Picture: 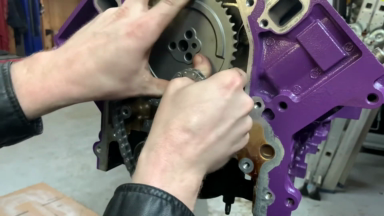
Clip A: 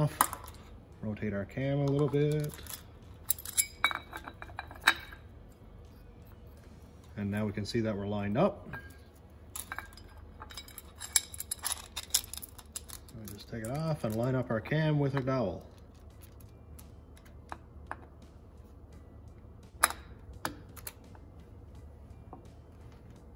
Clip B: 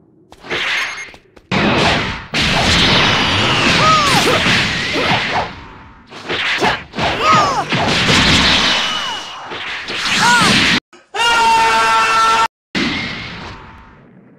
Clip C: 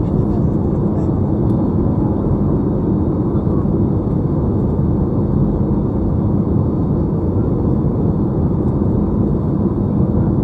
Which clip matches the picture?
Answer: A